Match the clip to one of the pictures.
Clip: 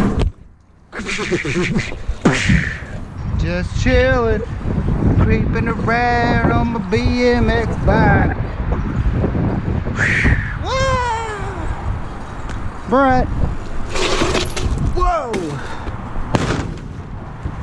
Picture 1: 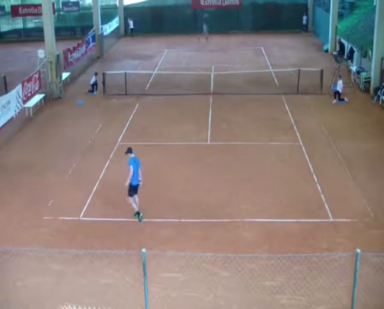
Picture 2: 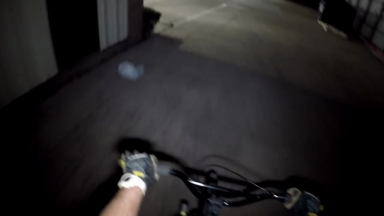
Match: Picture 2